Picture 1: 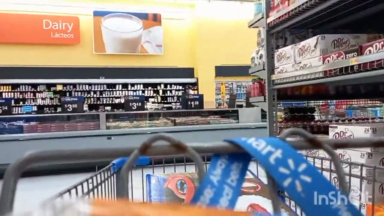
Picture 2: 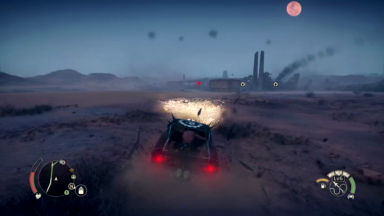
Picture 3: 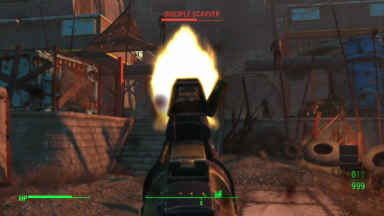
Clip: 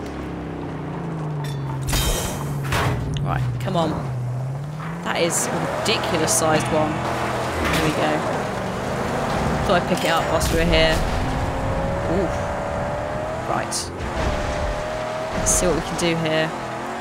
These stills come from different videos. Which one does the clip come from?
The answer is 2